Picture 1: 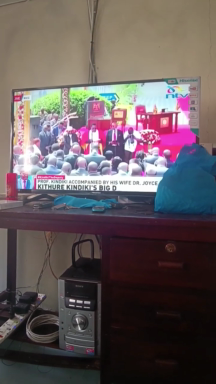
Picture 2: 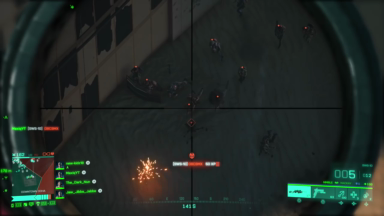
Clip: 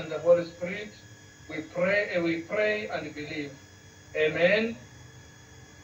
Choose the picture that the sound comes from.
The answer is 1